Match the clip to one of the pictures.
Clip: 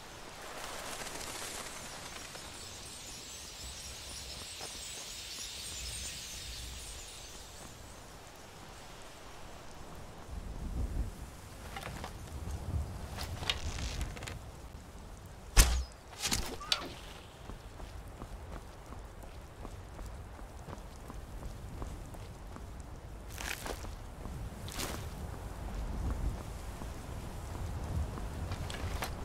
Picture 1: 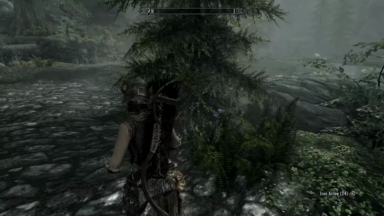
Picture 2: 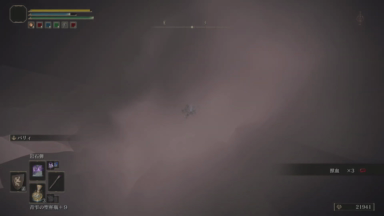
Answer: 1